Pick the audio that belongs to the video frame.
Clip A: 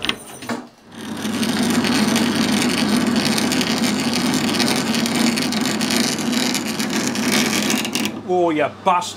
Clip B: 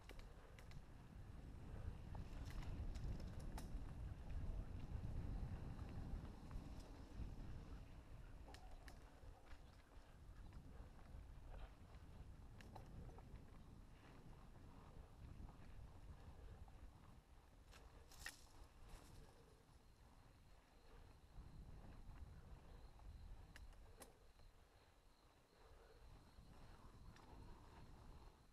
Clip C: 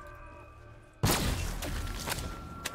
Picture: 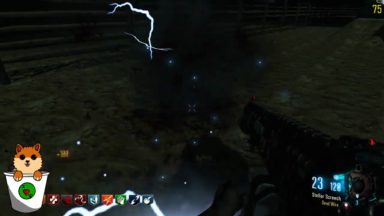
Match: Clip C